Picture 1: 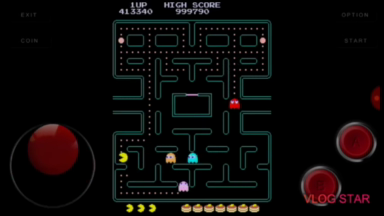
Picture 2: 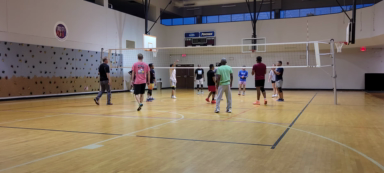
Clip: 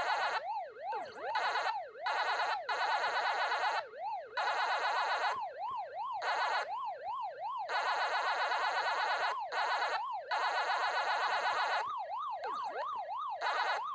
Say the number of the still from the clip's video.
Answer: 1